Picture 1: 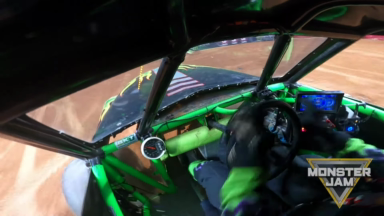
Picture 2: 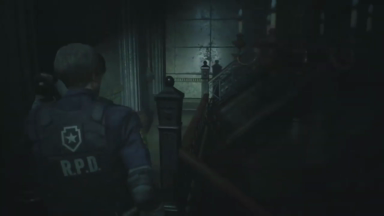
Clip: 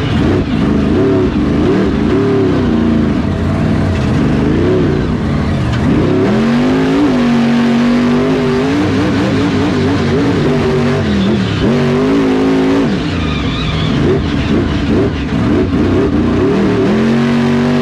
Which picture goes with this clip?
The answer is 1